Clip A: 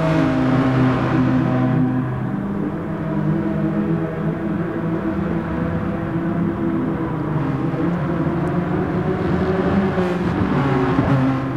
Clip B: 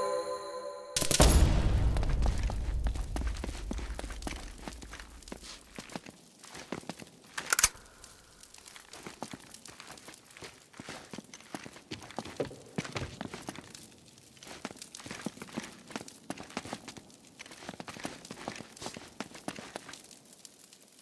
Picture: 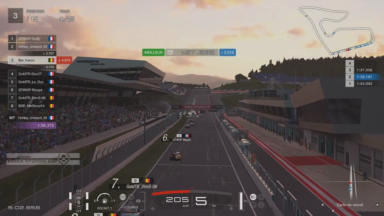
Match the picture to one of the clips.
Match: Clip A